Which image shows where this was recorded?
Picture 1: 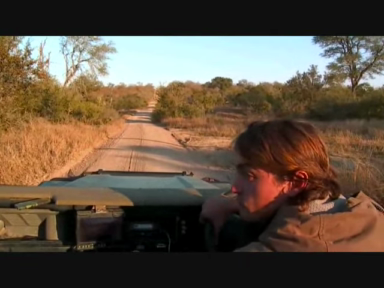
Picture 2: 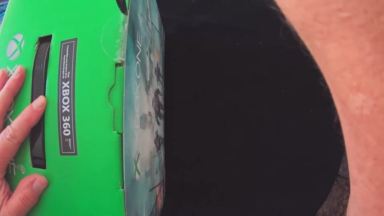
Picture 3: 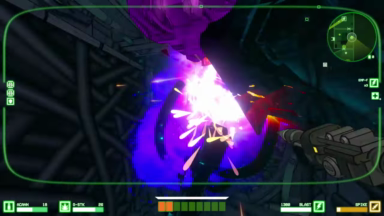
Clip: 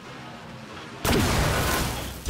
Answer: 3